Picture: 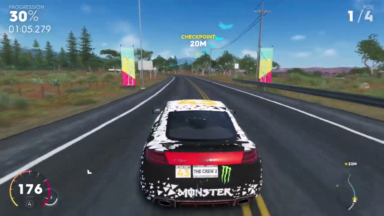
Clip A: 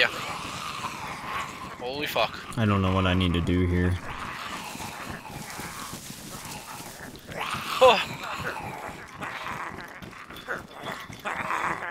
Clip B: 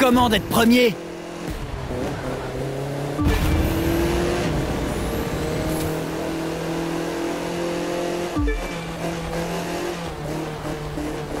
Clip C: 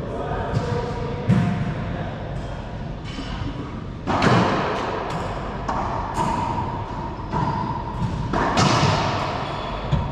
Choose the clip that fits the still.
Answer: B